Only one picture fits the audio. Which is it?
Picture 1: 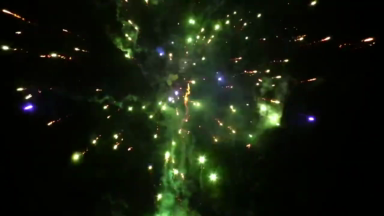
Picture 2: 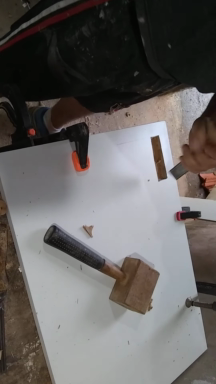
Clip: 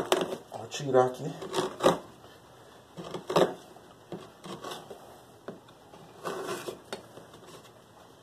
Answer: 2